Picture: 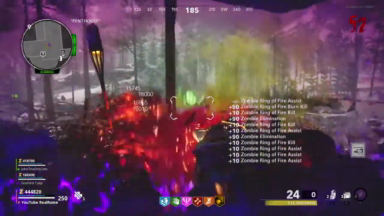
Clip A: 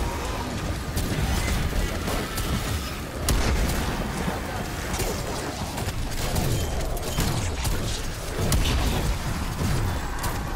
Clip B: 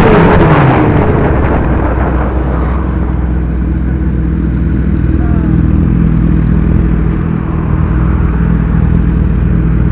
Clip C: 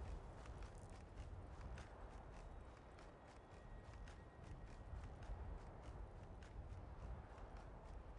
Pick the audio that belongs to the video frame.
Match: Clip A